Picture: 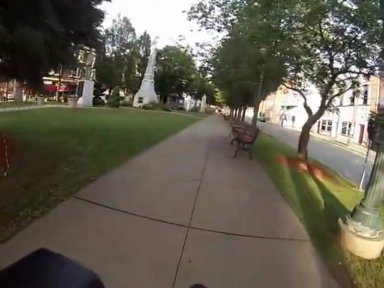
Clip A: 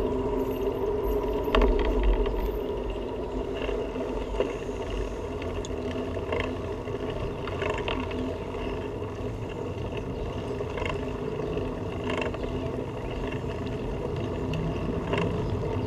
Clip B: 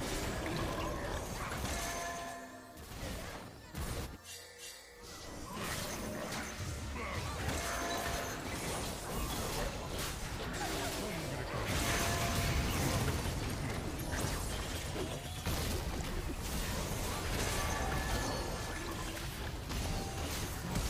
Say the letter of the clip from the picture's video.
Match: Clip A